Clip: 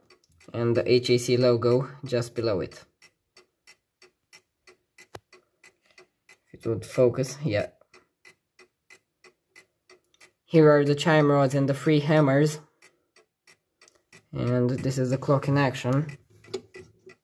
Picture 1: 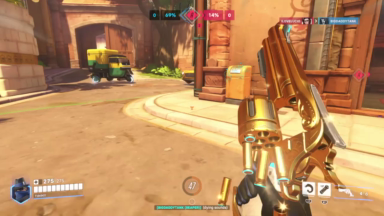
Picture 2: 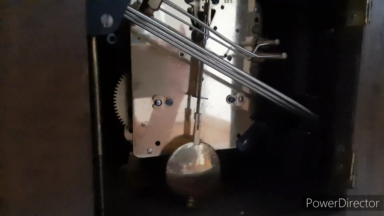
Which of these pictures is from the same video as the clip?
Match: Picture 2